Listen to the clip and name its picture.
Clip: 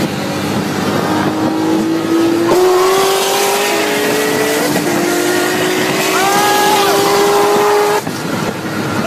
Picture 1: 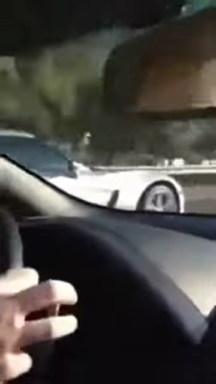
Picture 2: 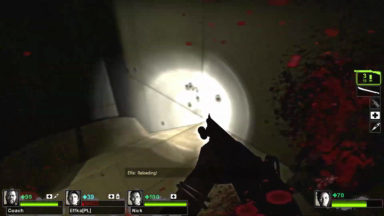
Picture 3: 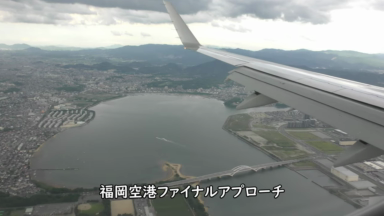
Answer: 1